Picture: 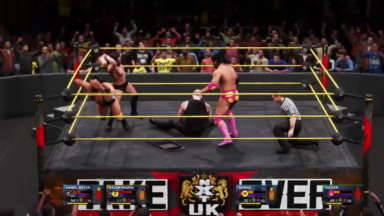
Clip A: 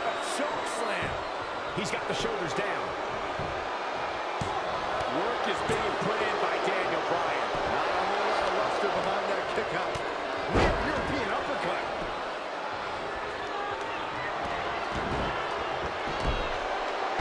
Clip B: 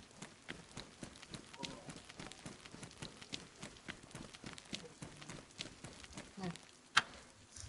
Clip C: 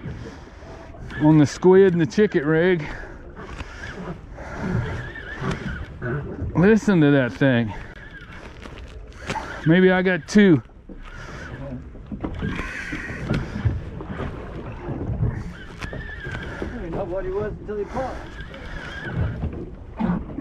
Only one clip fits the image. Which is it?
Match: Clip A